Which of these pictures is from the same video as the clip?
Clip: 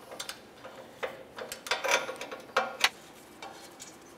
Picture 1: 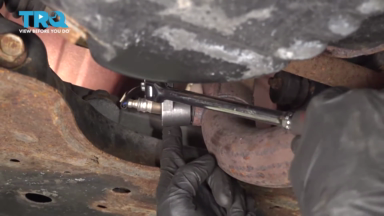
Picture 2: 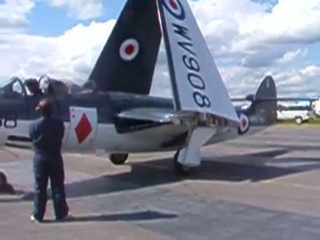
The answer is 1